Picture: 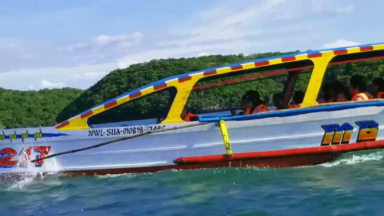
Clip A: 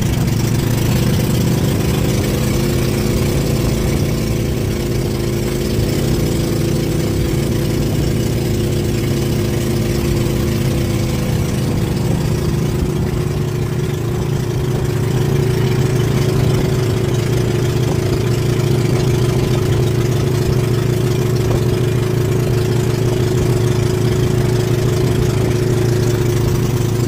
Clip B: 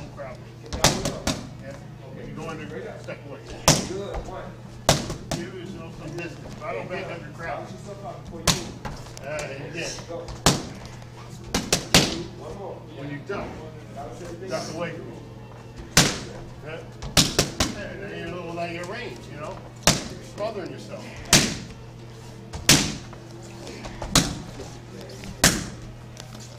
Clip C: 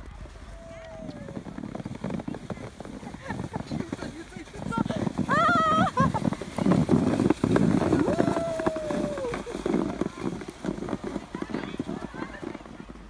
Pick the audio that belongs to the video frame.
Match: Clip A